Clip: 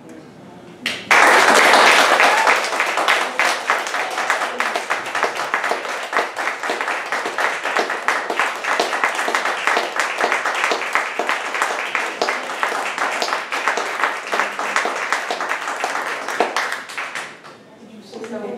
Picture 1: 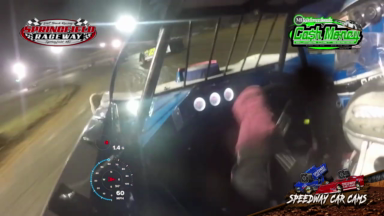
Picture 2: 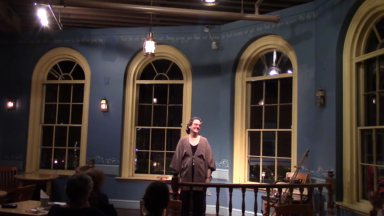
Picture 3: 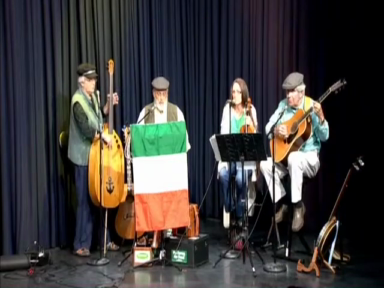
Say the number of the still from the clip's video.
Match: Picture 2